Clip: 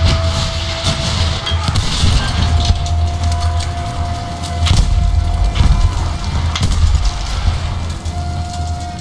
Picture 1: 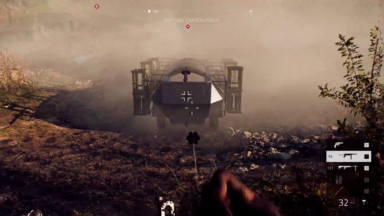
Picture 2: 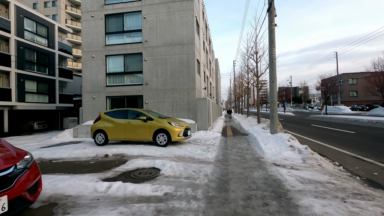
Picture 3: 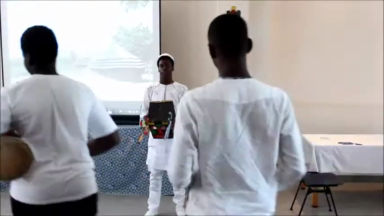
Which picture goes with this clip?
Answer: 1